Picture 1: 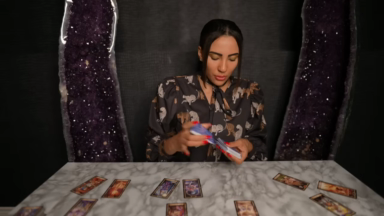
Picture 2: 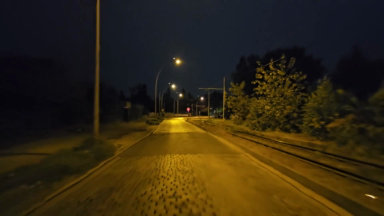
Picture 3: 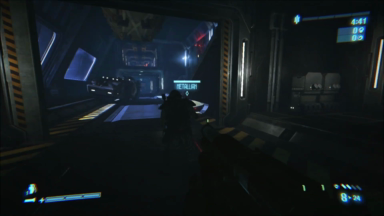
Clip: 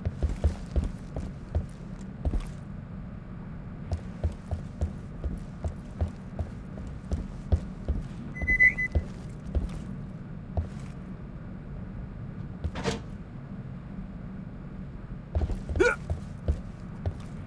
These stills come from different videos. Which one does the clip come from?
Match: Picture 3